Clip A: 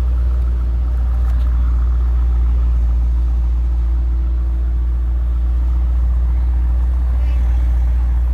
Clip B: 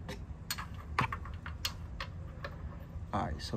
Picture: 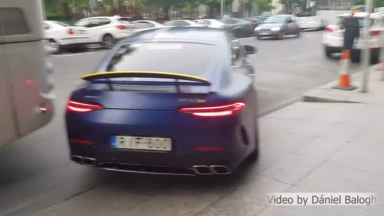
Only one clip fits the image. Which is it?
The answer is A